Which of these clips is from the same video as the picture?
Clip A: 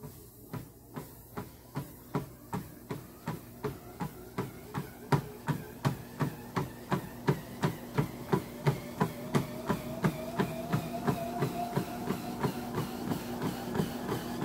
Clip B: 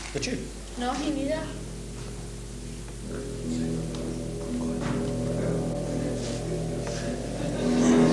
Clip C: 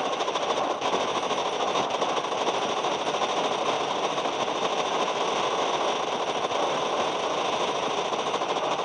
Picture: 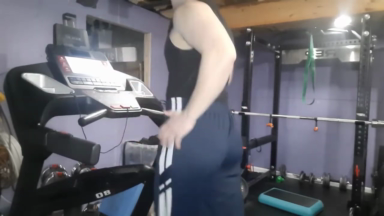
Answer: A